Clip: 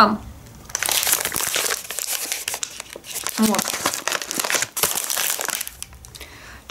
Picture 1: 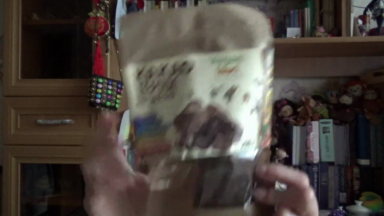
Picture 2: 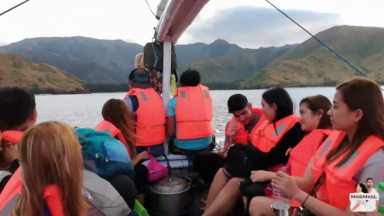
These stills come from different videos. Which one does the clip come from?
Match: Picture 1